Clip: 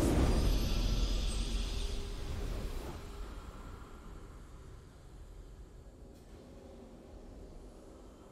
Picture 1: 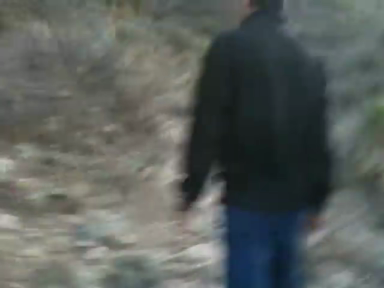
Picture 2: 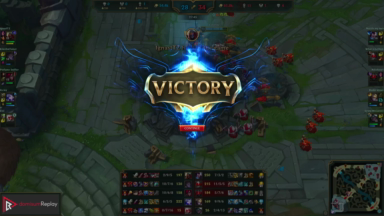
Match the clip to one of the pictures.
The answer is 2